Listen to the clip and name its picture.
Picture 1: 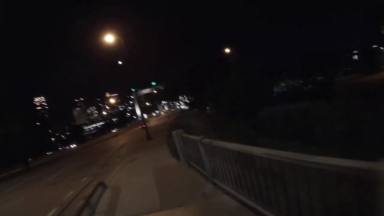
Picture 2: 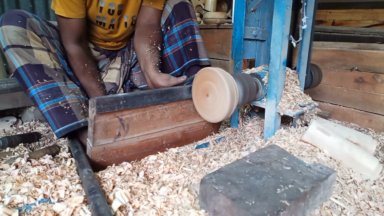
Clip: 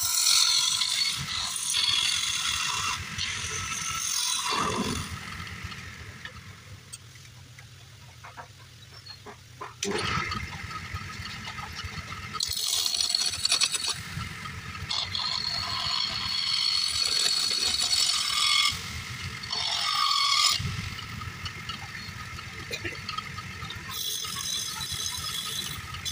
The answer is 2